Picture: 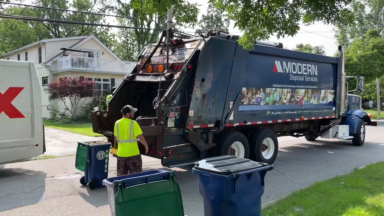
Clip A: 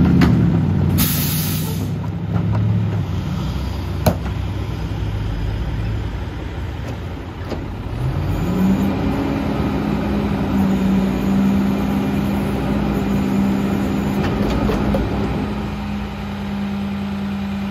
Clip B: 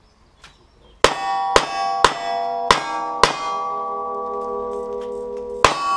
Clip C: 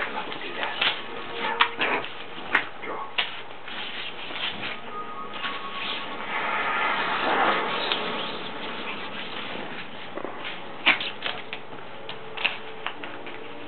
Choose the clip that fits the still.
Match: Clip A